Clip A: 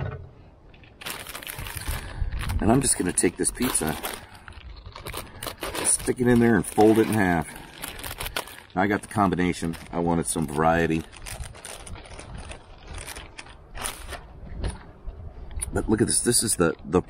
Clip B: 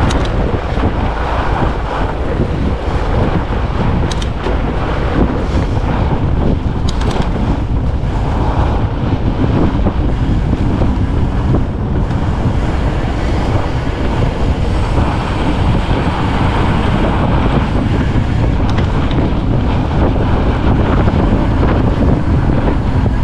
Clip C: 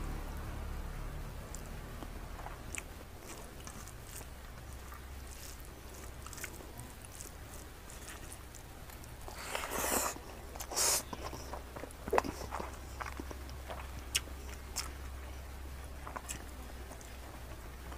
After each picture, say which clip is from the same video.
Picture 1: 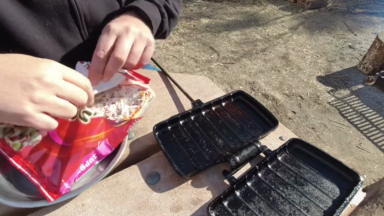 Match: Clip A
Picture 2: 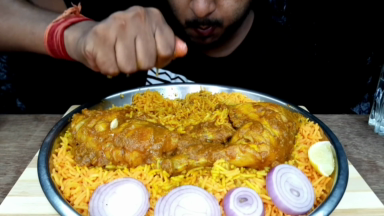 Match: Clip C